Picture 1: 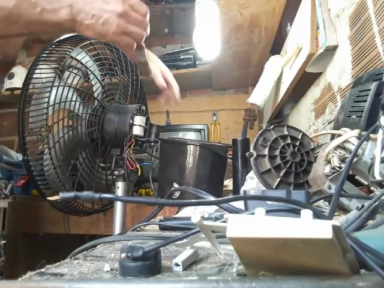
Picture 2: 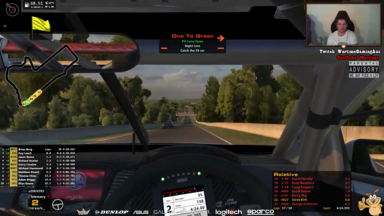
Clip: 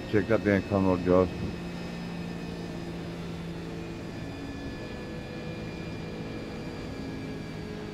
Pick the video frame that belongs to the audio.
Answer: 2